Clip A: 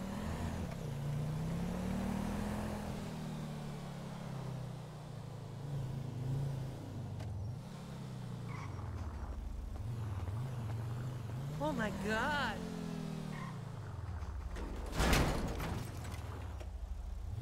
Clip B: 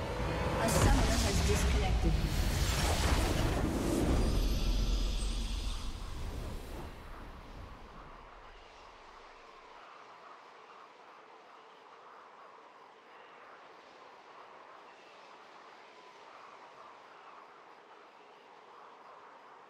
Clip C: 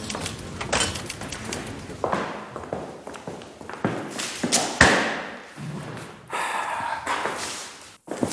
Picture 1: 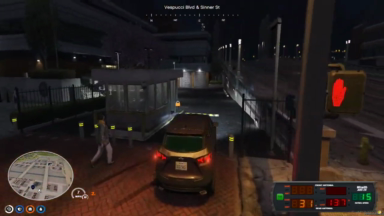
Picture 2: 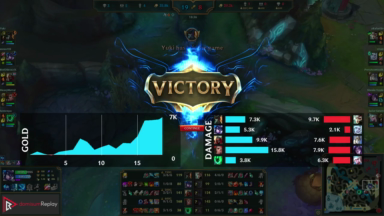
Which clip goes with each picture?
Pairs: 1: A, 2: B